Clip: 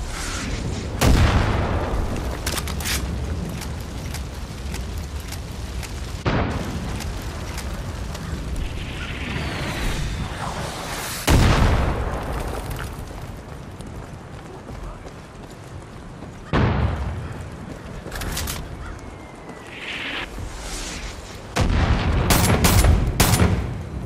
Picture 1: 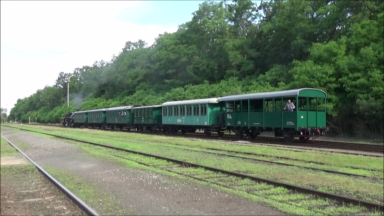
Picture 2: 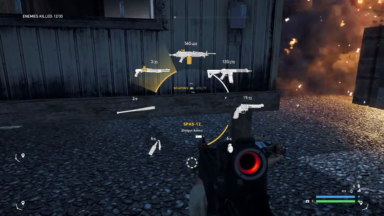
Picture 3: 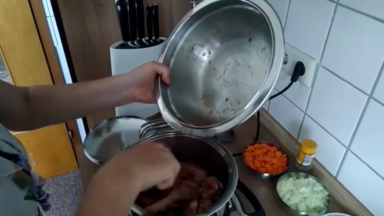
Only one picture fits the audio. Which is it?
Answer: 2